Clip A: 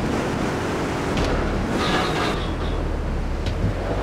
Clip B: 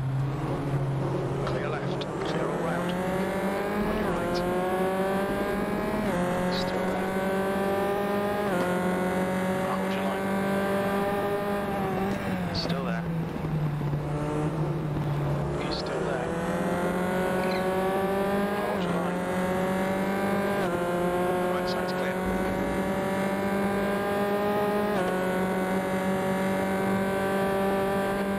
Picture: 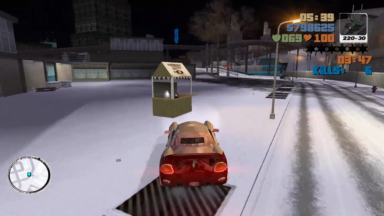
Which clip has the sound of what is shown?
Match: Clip A